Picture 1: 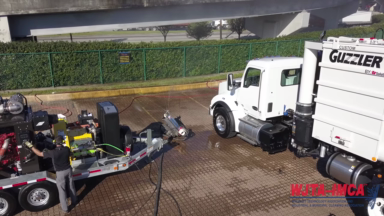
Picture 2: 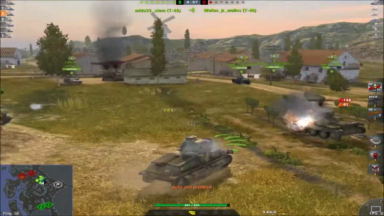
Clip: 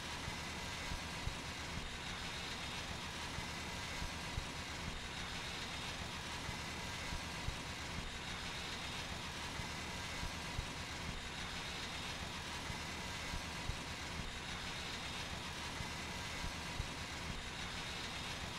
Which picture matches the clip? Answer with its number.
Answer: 1